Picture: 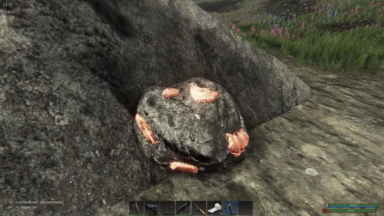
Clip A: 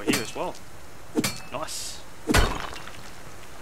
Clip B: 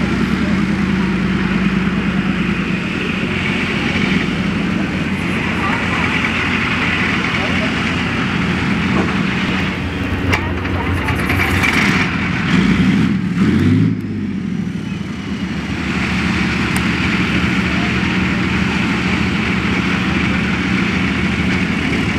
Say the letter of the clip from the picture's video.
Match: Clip A